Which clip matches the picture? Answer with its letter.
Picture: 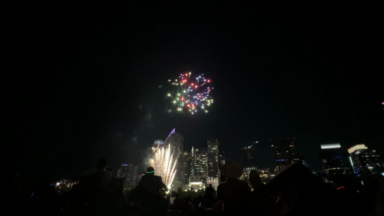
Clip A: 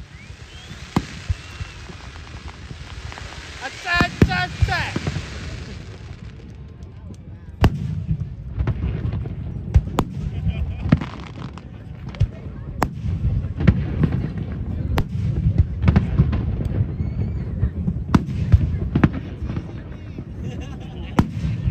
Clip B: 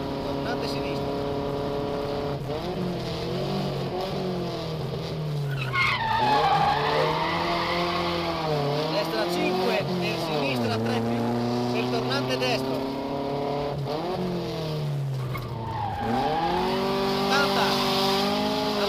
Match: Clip A